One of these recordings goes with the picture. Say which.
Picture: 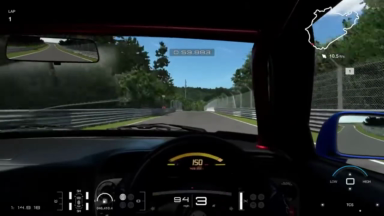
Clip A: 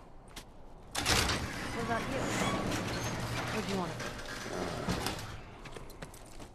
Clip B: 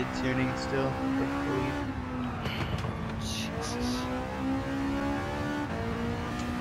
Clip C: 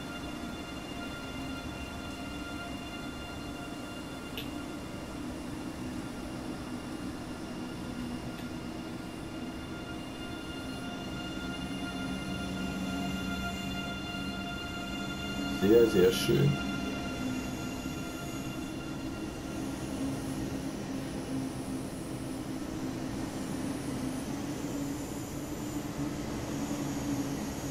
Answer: B